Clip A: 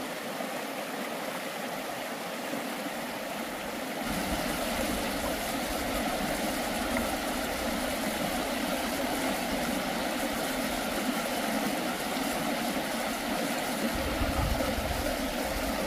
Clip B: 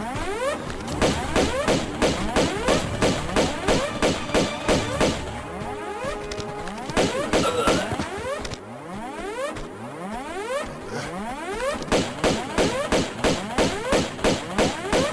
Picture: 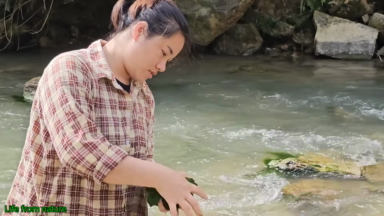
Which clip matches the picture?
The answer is A